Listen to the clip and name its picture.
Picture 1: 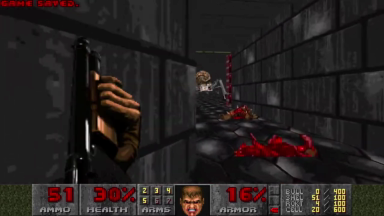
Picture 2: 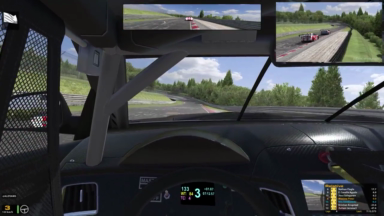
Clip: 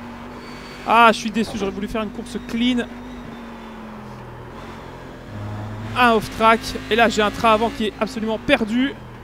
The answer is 2